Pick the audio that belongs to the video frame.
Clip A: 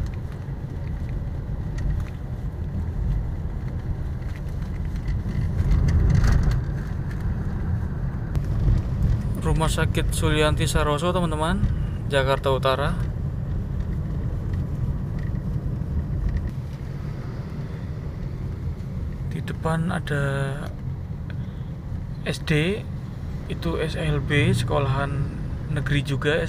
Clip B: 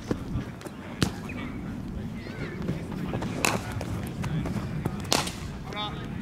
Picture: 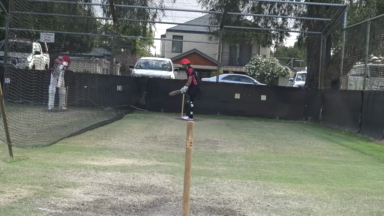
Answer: B